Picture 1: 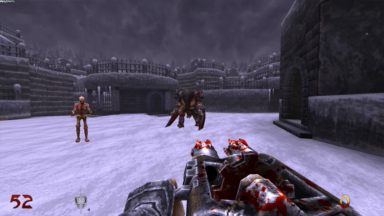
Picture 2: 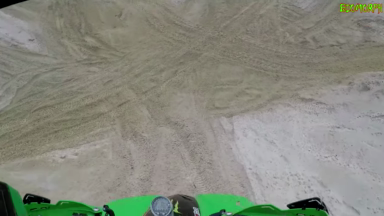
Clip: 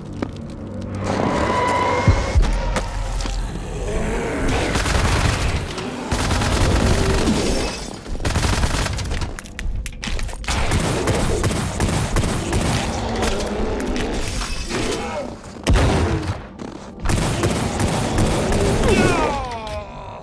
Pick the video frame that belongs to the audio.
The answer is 1